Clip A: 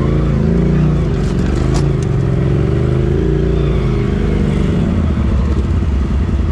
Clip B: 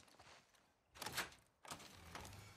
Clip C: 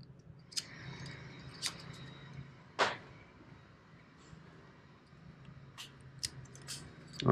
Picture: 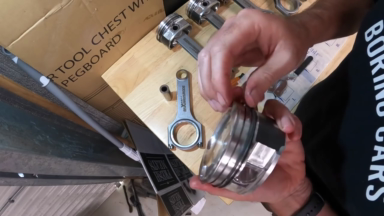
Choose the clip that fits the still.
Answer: C